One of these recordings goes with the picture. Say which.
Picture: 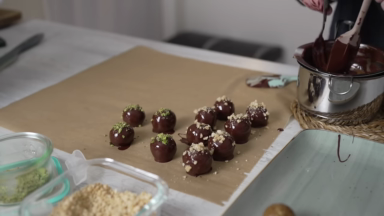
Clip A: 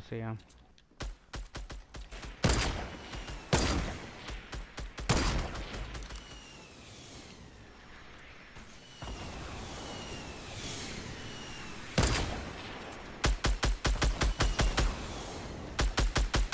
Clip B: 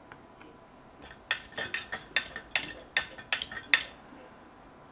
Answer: B